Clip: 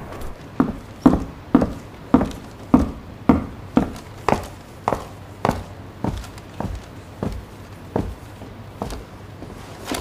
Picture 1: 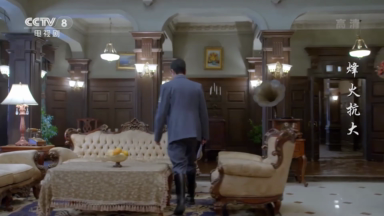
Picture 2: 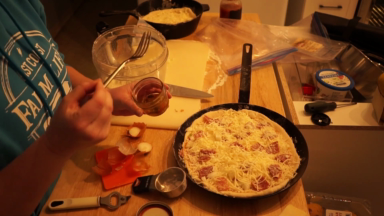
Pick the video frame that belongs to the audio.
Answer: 1